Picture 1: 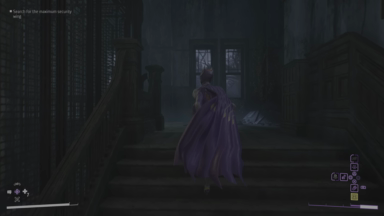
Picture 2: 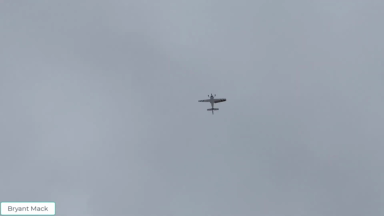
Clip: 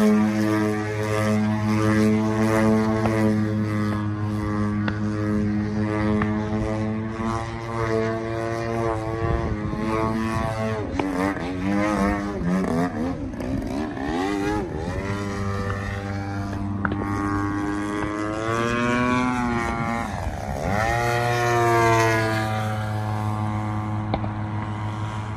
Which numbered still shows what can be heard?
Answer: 2